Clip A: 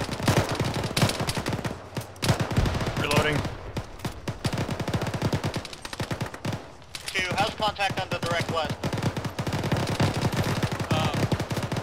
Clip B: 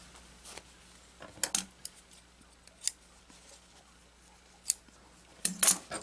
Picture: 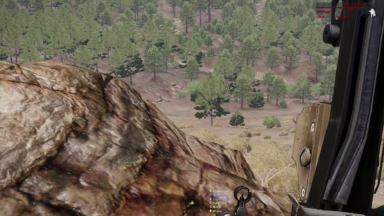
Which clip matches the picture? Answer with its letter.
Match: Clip A